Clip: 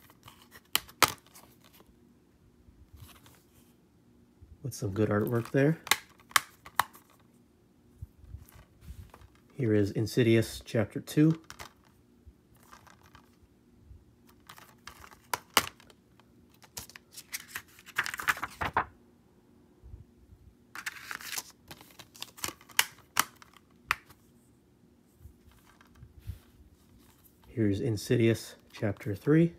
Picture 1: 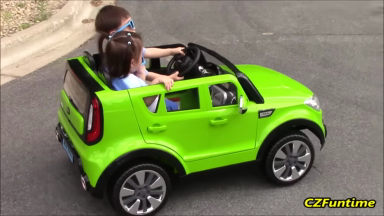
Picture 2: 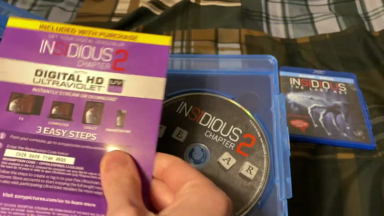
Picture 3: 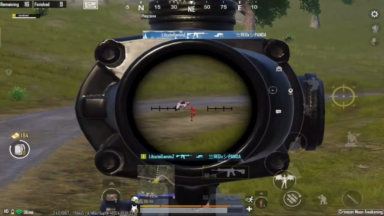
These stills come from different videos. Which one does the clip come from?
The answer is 2